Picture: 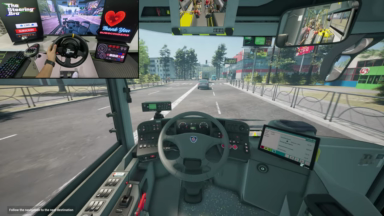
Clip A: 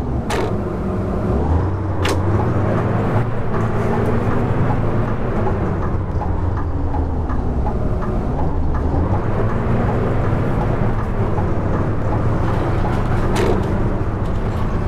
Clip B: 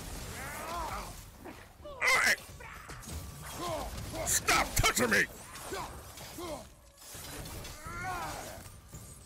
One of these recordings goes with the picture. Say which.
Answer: A